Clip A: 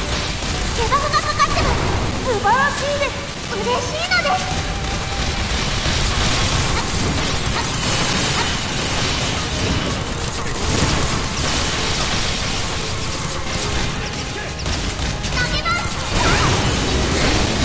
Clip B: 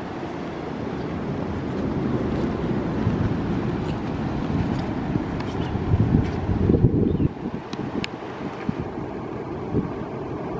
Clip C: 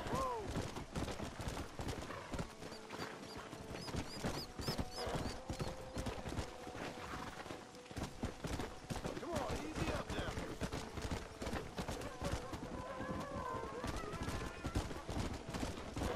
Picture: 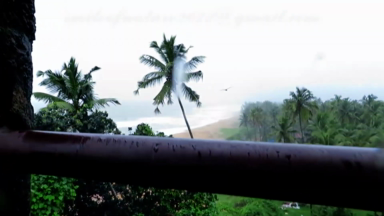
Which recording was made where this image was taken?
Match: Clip B